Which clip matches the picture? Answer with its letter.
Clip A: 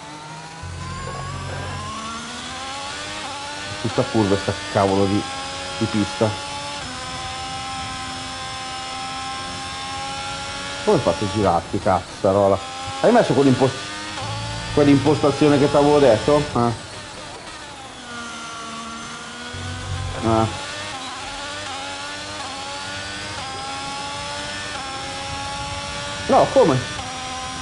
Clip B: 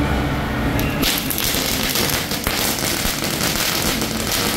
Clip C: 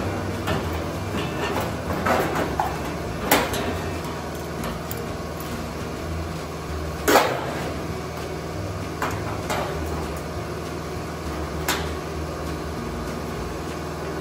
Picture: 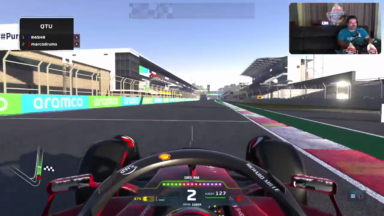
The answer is A